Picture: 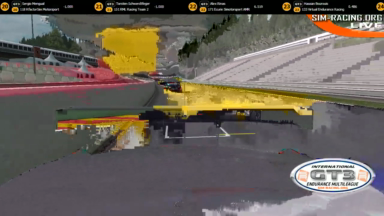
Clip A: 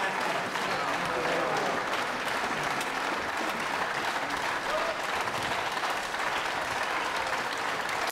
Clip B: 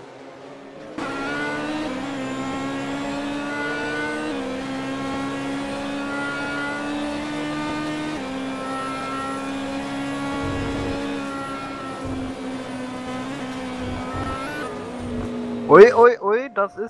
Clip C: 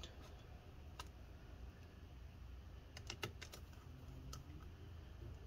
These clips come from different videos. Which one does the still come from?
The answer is B